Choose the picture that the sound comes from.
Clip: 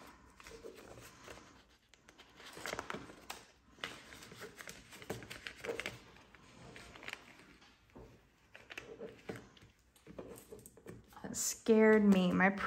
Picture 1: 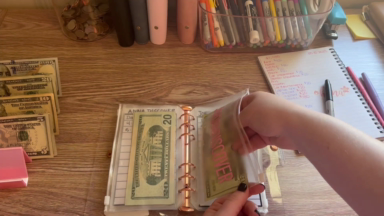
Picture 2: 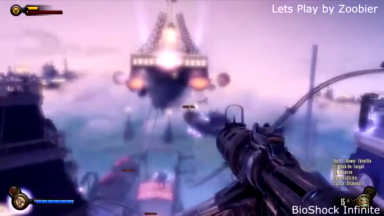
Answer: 1